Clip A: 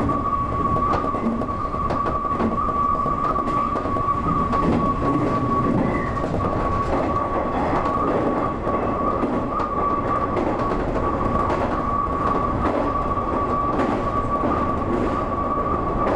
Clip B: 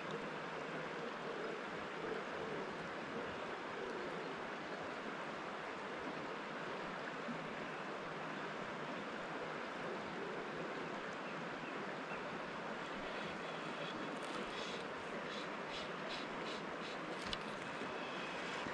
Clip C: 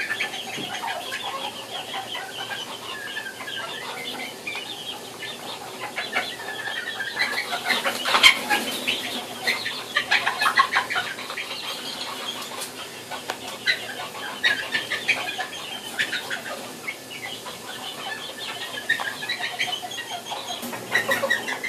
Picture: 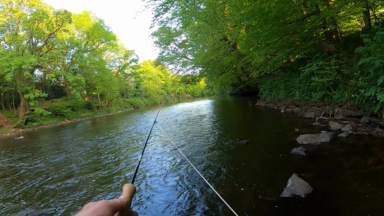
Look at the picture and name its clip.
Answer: B